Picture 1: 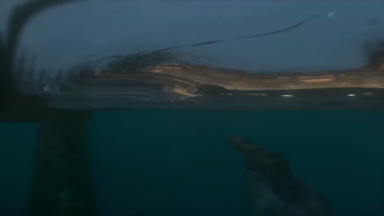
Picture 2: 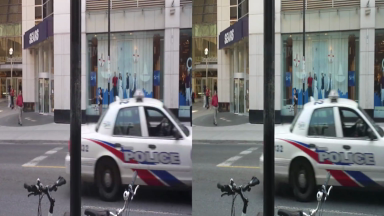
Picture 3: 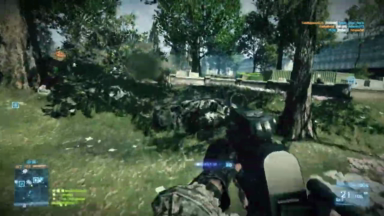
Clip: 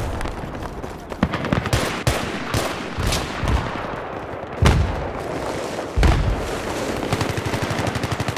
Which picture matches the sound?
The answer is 3